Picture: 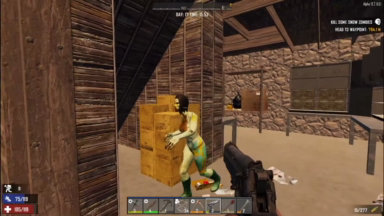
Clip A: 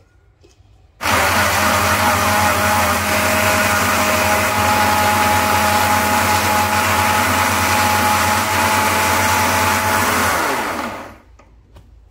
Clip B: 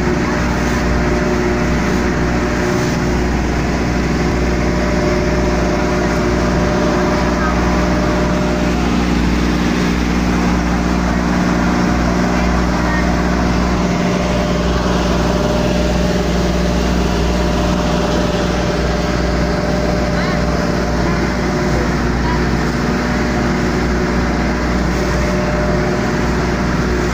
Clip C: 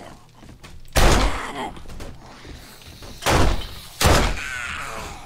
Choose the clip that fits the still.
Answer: C